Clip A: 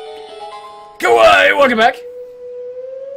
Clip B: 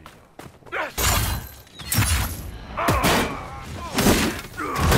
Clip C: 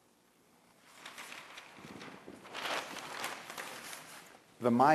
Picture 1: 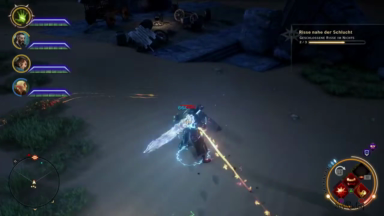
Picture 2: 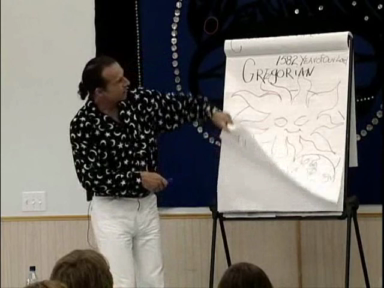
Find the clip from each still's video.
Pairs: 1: B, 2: C